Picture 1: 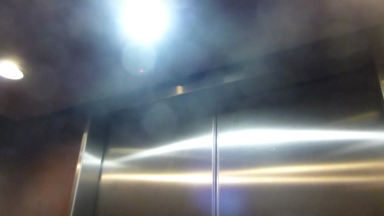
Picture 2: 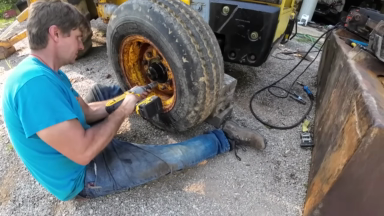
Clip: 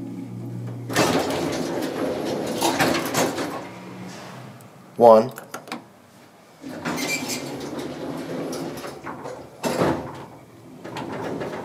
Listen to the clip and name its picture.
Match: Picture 1